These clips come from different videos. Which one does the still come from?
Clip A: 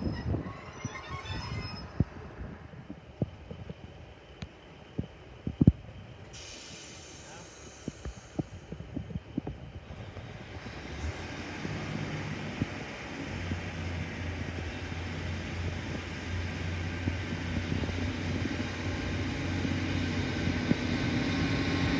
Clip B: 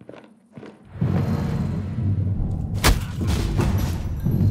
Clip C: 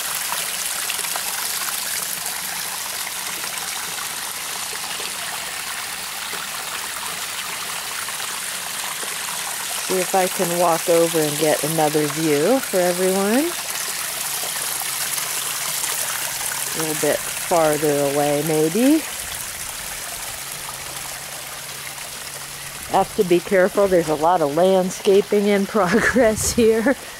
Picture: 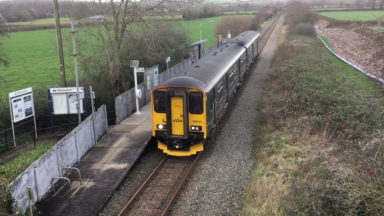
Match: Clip A